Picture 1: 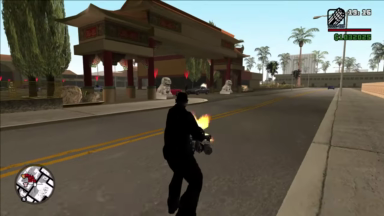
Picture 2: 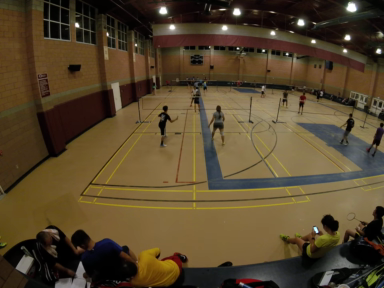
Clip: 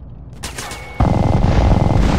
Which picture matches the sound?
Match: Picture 1